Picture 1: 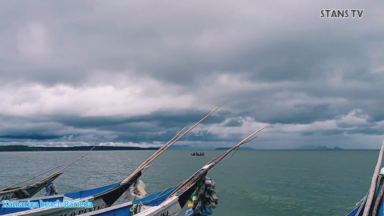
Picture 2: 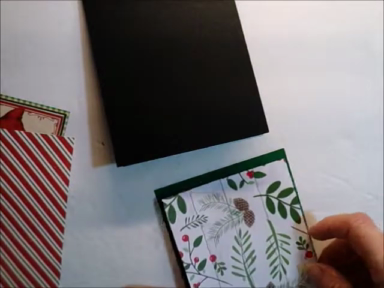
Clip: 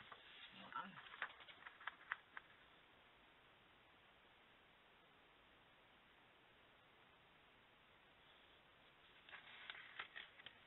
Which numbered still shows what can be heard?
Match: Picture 2